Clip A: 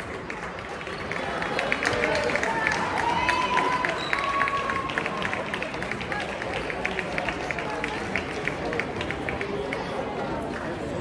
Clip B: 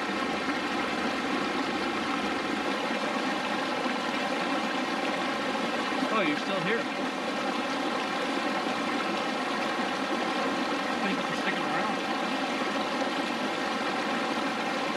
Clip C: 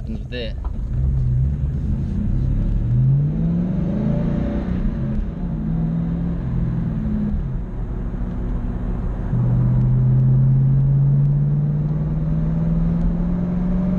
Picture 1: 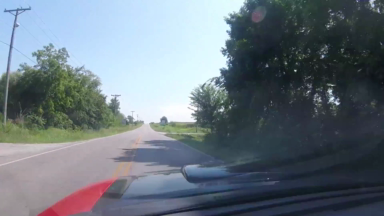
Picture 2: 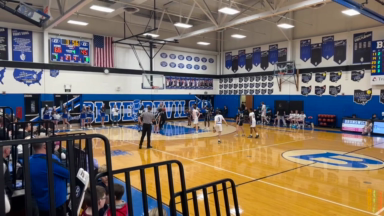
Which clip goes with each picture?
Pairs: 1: C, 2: A